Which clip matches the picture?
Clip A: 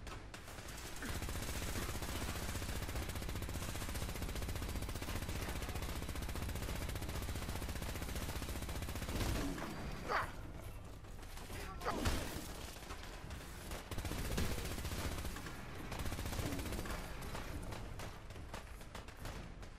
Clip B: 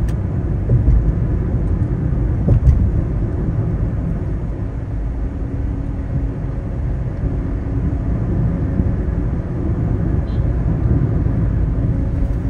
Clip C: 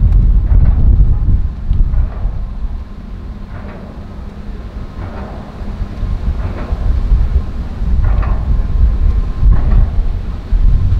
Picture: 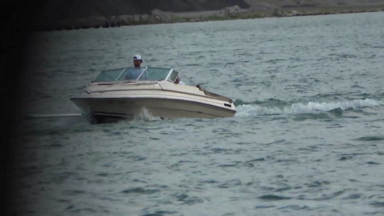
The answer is C